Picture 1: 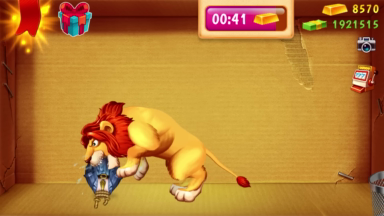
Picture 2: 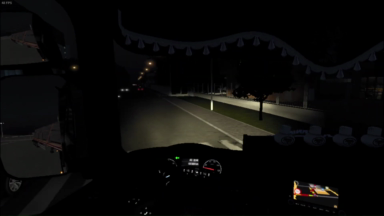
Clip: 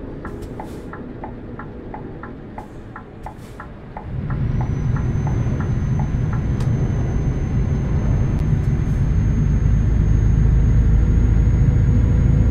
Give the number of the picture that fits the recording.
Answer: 2